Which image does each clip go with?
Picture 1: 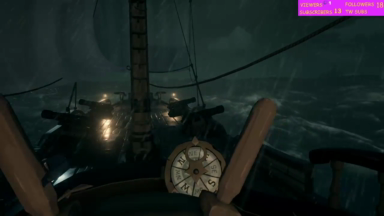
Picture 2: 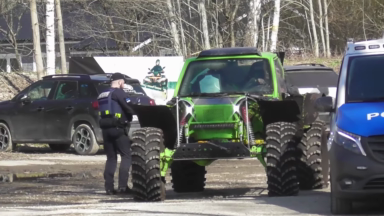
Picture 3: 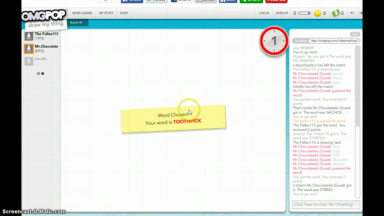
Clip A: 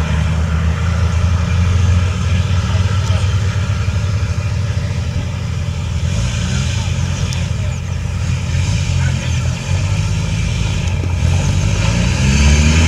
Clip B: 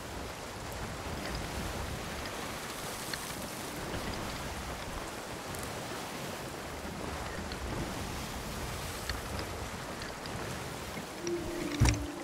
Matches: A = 2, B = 1